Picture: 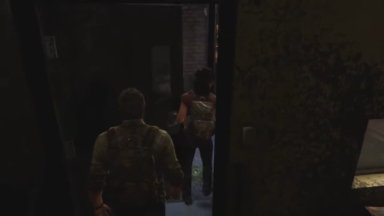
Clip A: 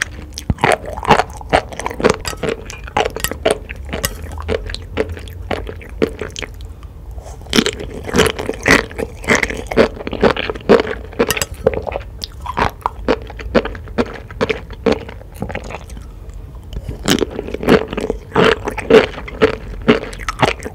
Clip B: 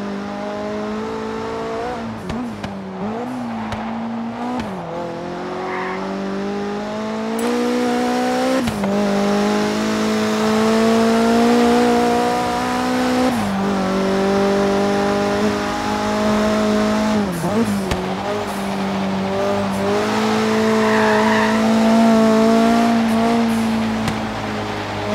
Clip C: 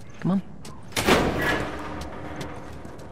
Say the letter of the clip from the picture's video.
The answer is C